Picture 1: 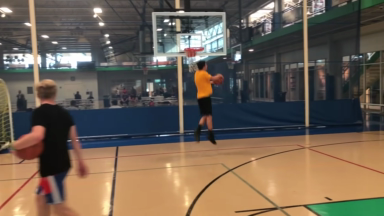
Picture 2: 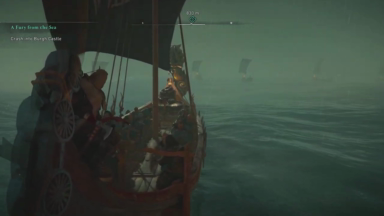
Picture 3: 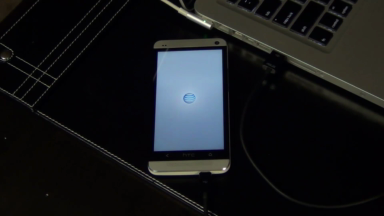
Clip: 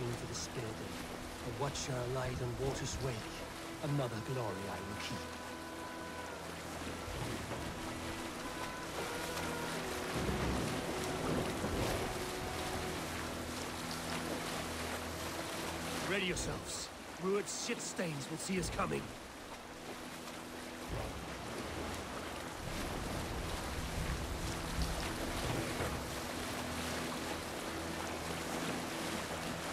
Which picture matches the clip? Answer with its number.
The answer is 2